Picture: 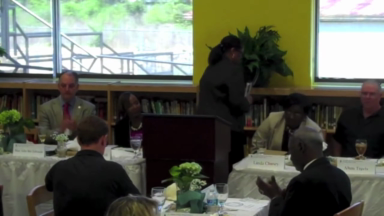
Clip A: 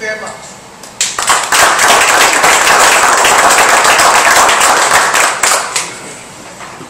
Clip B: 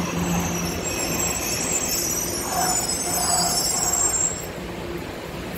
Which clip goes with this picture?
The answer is A